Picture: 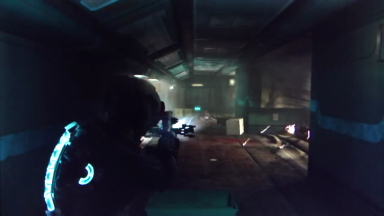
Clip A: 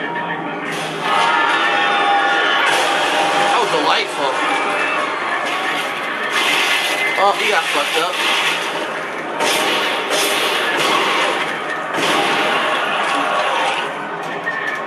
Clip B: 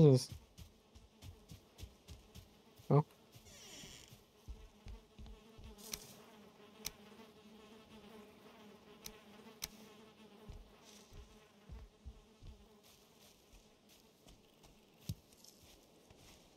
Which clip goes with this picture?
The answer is A